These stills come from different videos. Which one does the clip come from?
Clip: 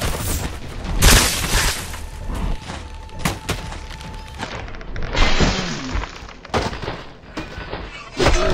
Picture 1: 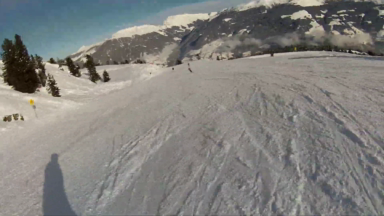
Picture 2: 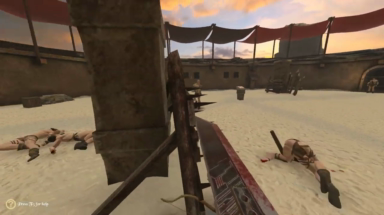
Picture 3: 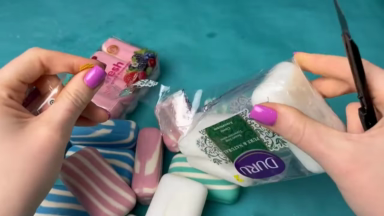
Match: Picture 2